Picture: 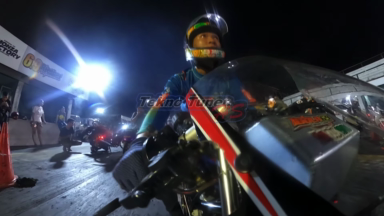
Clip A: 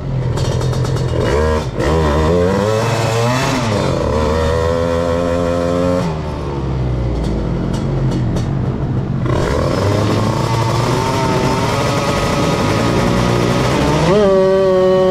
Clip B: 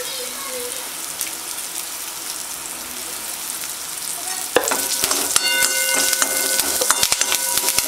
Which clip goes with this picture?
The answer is A